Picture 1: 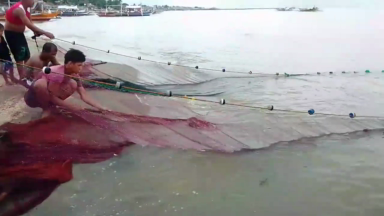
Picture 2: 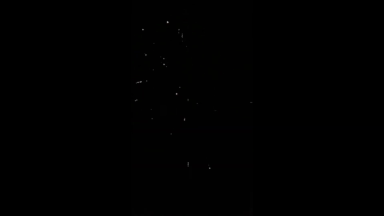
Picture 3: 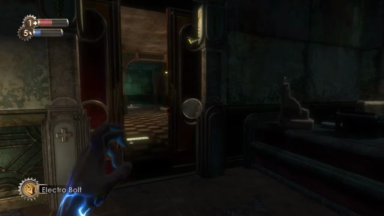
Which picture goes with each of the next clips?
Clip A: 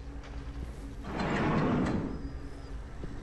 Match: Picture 3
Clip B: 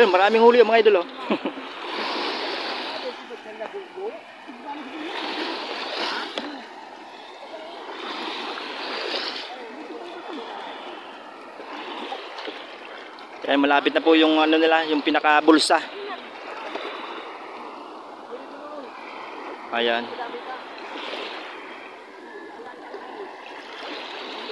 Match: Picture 1